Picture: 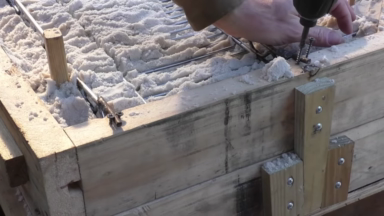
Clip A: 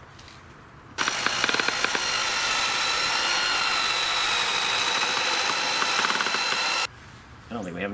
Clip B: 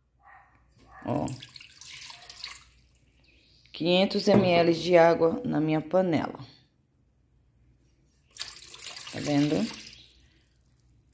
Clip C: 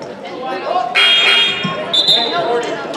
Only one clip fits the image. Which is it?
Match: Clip A